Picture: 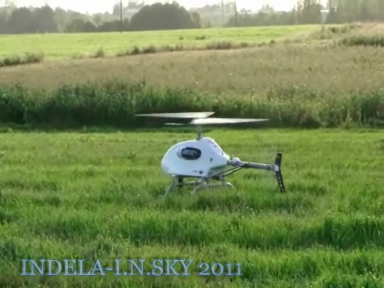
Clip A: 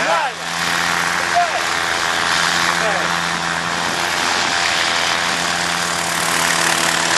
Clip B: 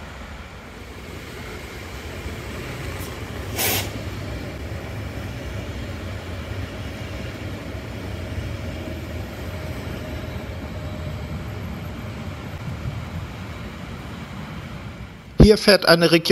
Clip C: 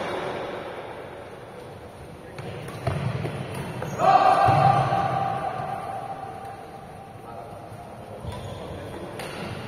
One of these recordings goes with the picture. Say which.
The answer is A